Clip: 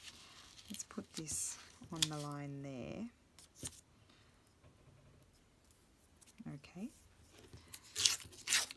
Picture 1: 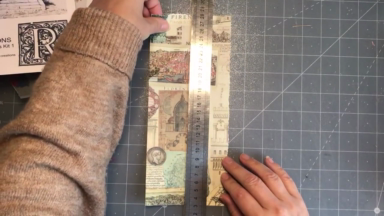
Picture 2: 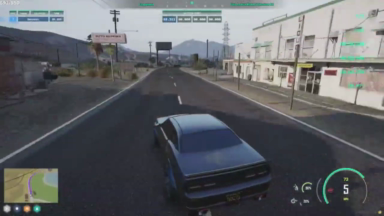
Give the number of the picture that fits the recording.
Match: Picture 1